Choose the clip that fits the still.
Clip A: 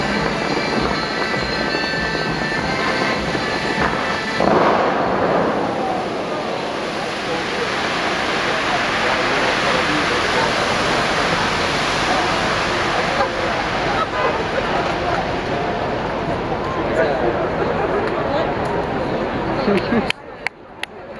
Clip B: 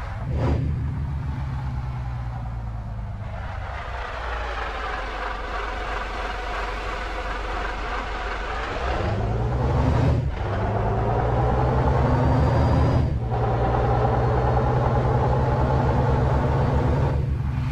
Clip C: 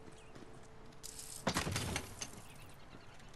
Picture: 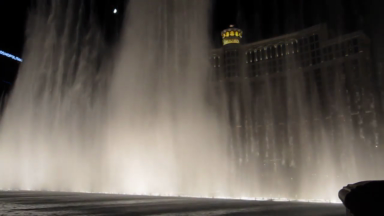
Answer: A